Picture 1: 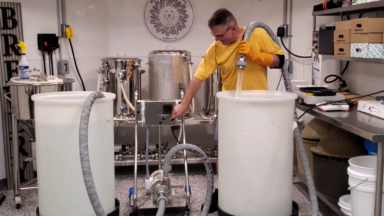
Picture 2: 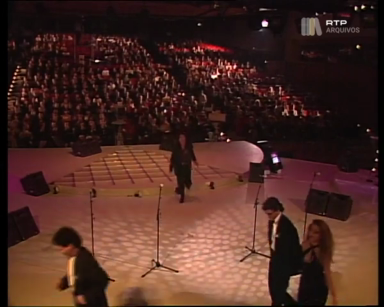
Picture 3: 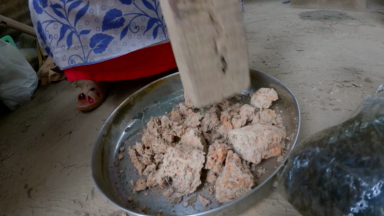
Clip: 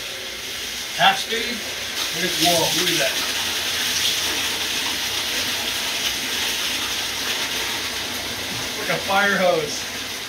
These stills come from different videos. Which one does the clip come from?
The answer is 1